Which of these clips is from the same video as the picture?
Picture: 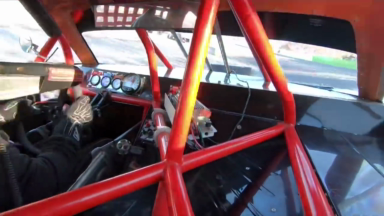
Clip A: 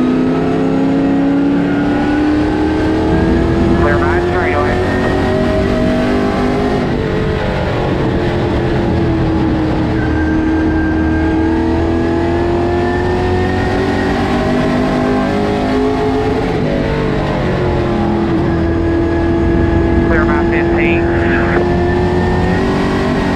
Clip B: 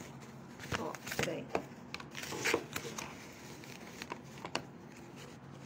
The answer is A